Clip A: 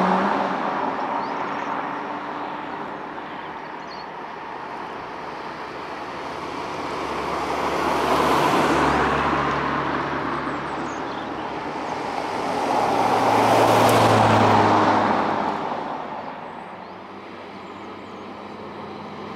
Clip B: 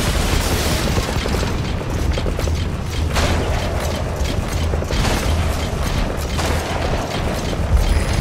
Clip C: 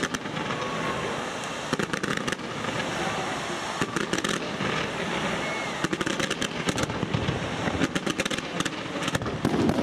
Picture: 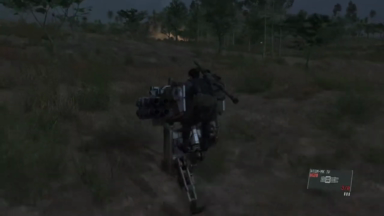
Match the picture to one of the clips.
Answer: B